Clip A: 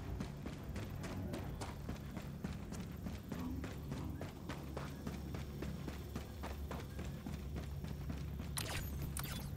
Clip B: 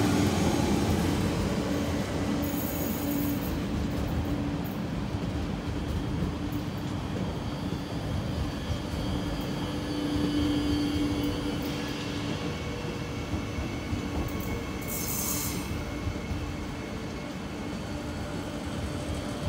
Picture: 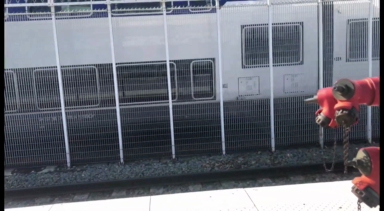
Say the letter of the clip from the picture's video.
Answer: B